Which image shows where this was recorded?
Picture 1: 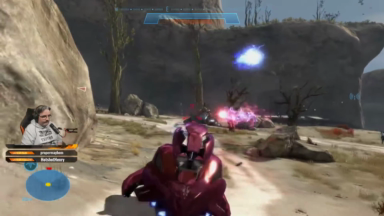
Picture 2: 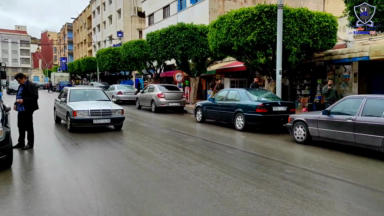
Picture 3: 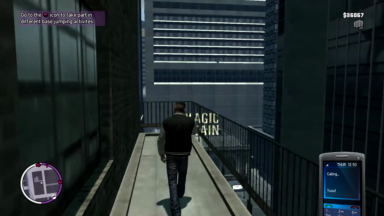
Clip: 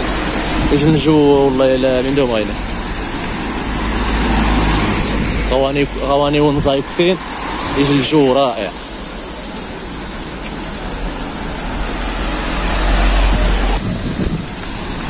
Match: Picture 2